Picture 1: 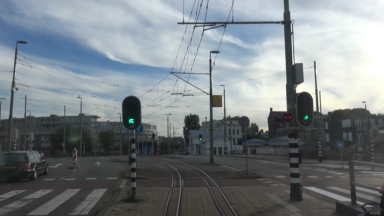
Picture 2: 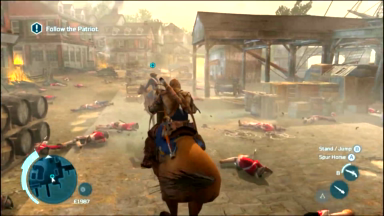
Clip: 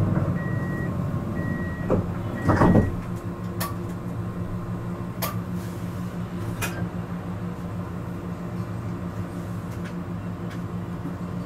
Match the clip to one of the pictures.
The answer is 1